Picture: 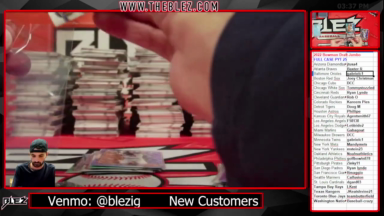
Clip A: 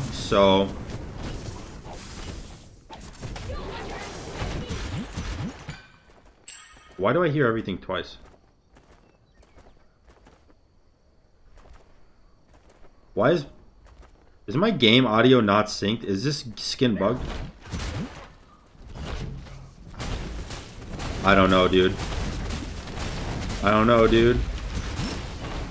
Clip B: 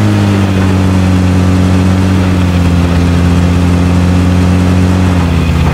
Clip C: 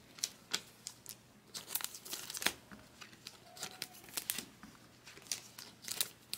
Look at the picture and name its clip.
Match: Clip C